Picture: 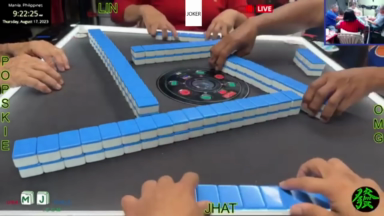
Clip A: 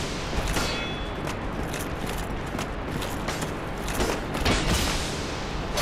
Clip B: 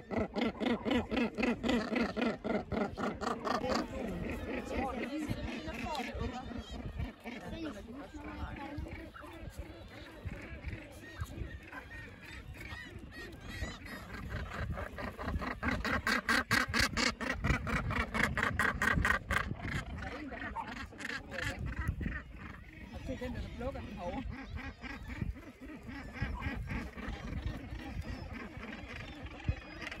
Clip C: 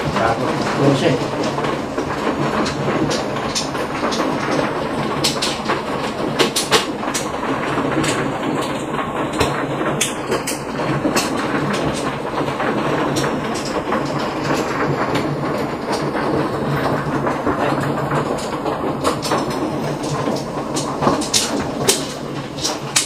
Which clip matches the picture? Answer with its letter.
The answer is C